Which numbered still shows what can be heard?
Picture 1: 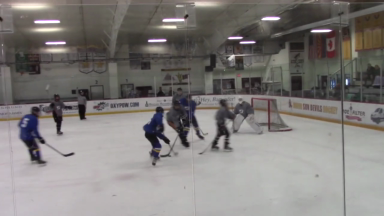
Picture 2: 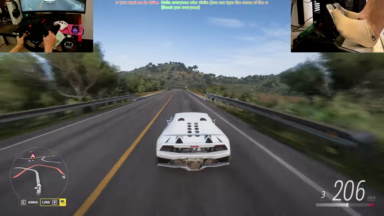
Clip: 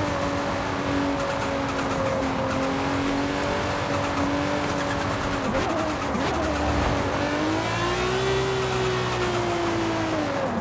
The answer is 2